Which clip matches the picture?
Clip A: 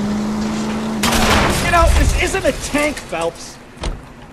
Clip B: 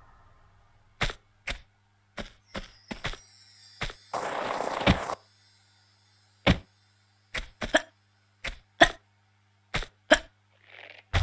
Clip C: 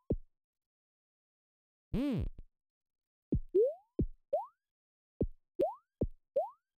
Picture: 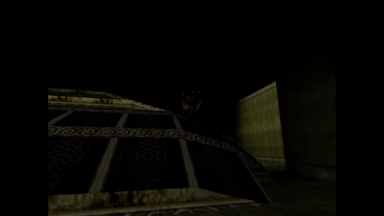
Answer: B